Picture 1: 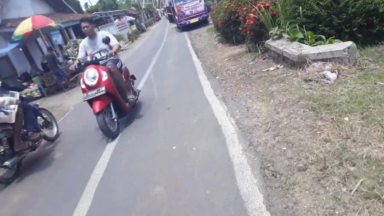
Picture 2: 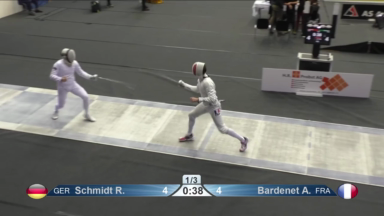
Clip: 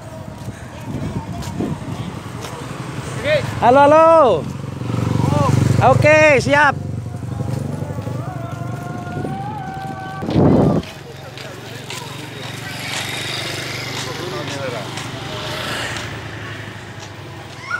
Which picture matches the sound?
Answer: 1